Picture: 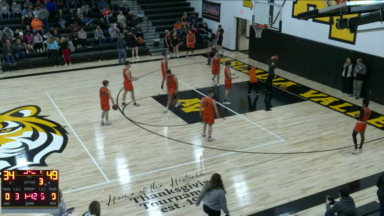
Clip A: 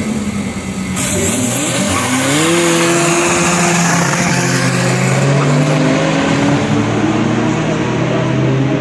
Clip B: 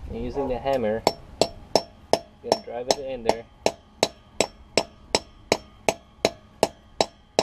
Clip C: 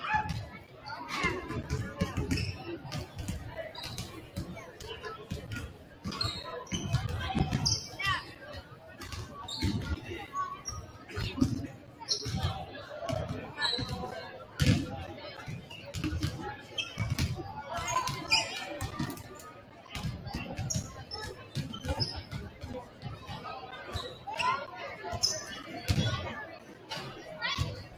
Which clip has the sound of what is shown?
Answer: C